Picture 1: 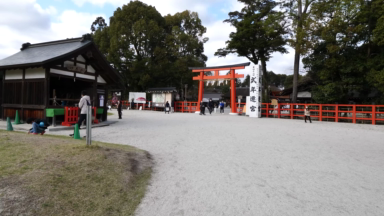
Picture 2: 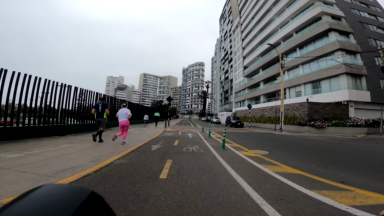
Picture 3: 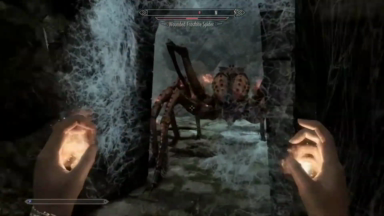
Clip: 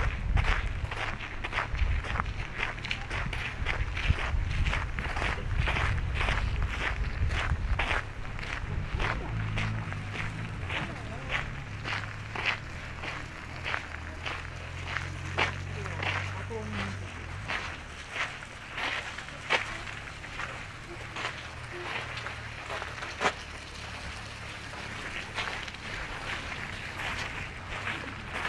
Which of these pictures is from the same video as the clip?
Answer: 1